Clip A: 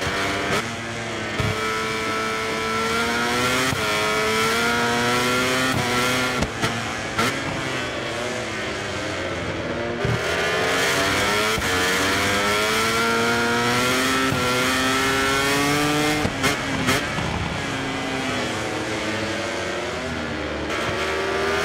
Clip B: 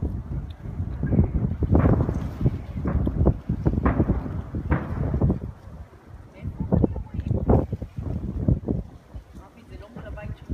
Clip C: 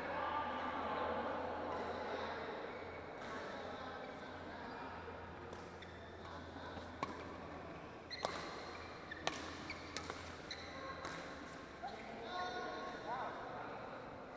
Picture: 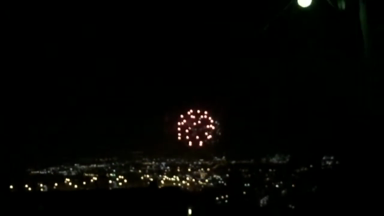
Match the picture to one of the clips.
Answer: B